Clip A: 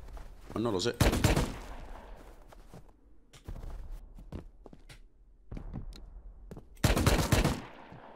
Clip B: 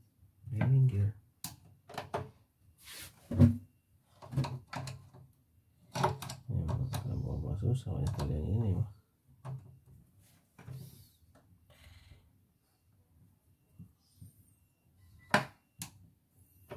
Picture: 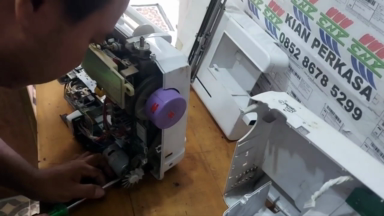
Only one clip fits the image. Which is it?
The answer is B